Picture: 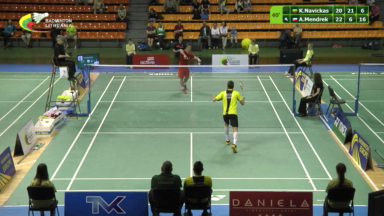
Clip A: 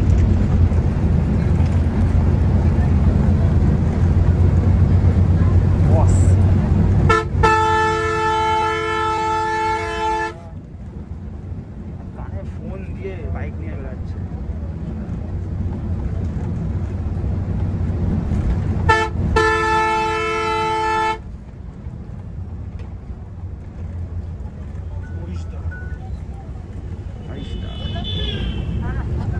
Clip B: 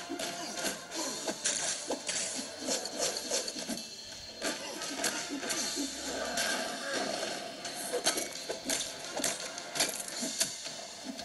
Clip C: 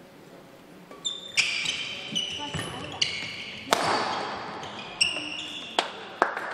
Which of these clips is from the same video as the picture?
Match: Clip C